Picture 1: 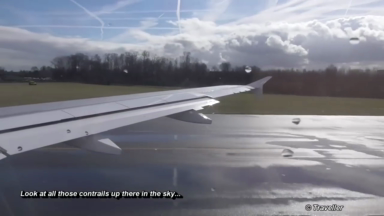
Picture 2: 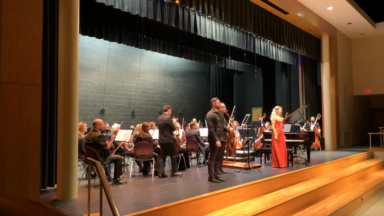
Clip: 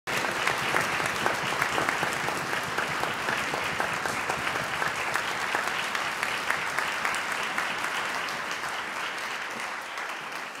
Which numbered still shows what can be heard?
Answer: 2